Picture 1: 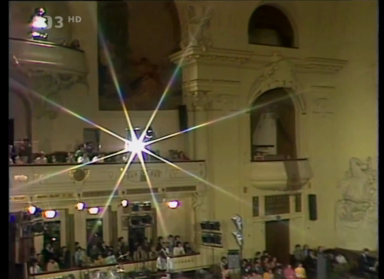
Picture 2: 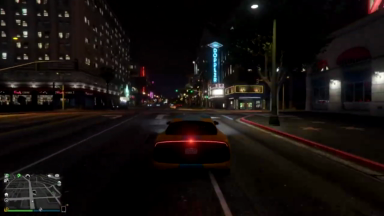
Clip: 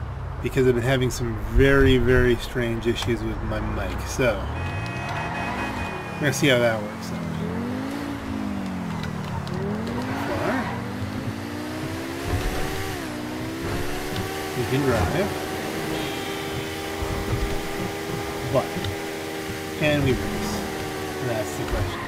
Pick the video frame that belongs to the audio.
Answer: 2